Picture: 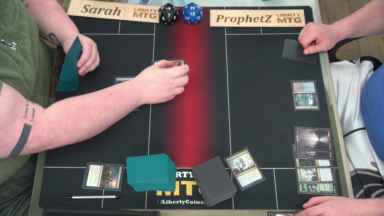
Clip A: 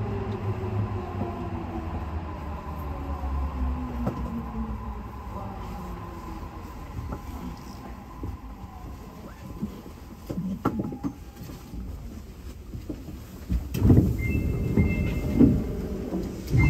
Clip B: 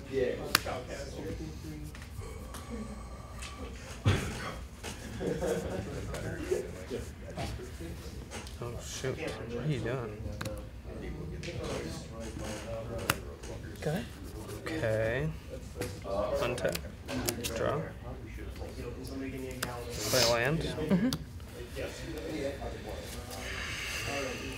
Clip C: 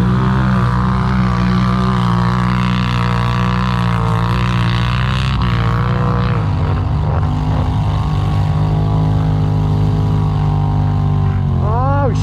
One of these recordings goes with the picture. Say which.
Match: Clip B